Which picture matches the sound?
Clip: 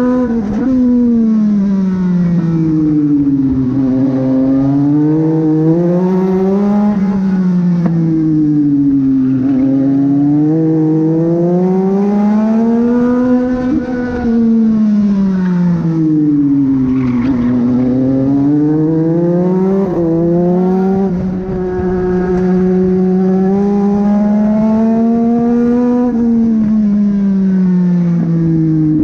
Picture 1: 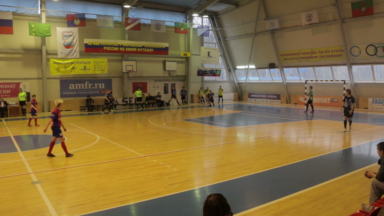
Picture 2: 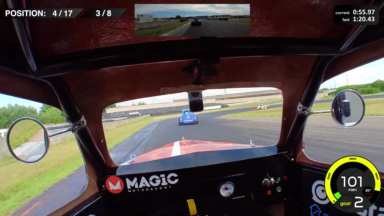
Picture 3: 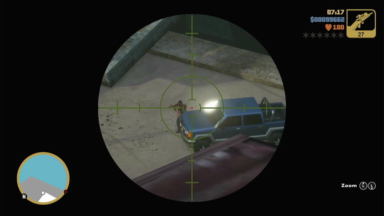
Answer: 2